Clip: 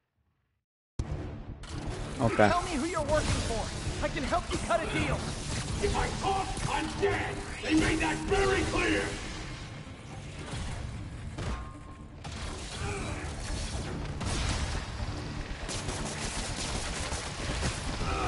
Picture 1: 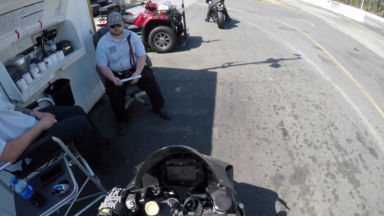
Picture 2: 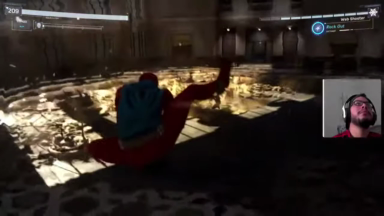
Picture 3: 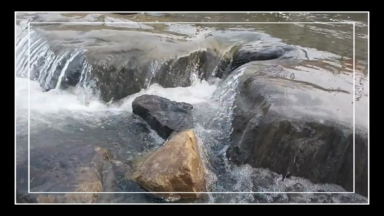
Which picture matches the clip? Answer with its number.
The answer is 2